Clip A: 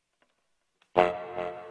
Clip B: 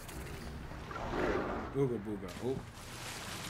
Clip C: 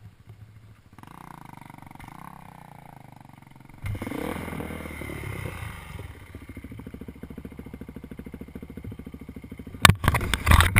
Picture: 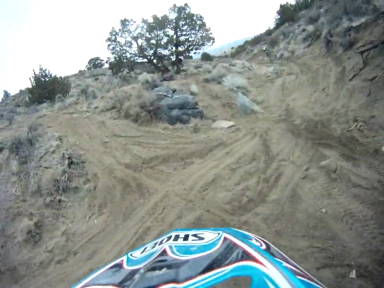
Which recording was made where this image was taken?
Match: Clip C